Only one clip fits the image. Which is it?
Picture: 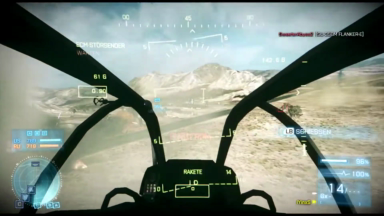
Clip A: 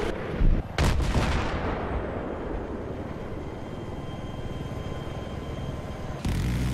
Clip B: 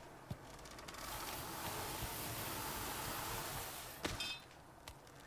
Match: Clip A